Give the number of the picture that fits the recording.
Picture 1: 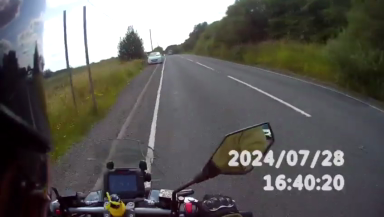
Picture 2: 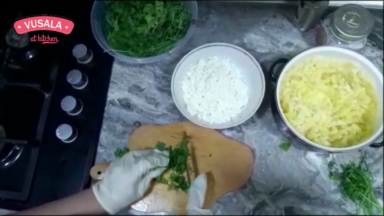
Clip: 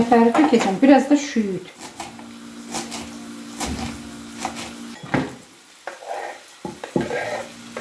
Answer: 2